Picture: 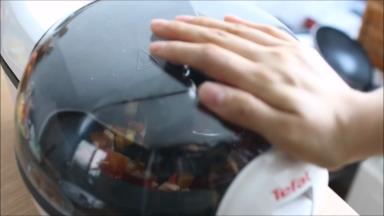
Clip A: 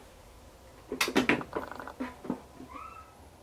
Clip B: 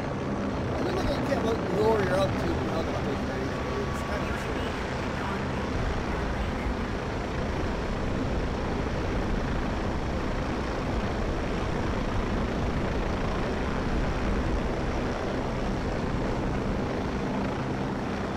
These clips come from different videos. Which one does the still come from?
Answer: A